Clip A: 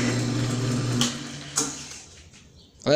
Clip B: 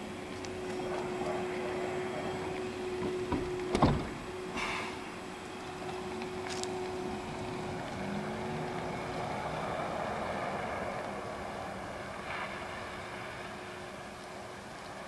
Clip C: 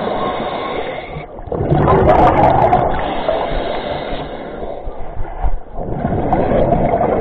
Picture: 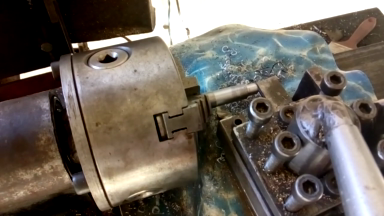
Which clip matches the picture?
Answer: A